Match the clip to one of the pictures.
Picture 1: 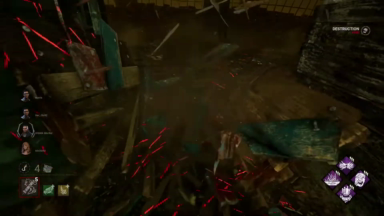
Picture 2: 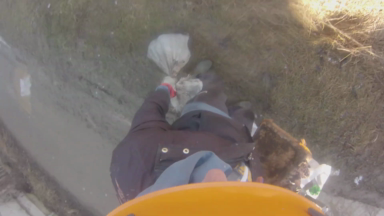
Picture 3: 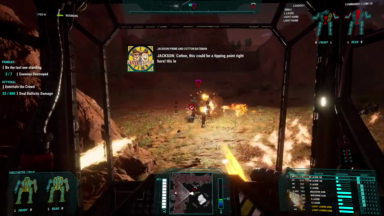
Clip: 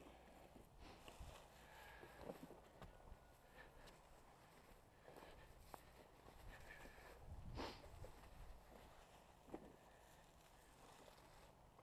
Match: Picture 2